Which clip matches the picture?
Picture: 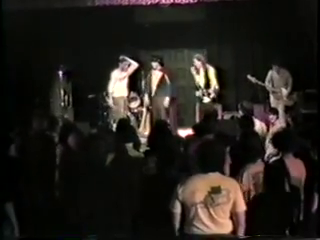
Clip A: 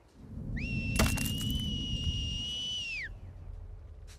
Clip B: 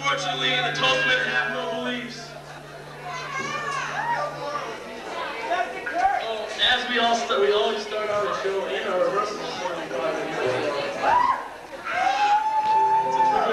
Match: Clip B